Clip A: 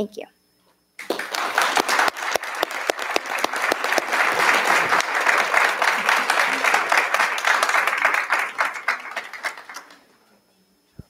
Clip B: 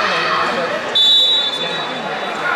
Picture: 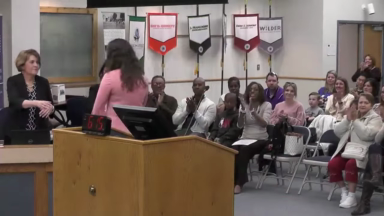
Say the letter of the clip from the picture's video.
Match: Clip A